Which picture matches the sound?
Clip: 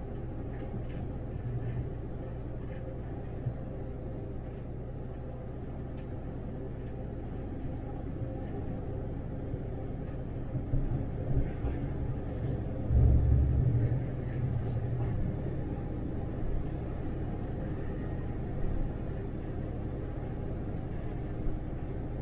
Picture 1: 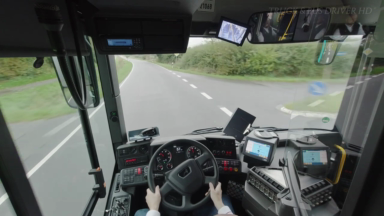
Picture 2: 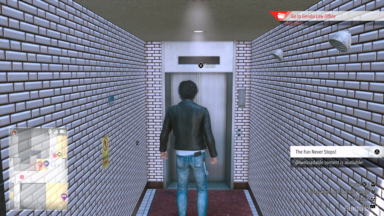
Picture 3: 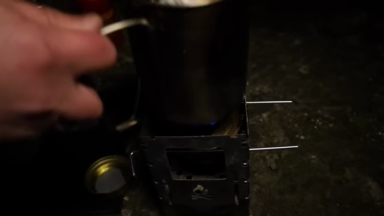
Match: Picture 1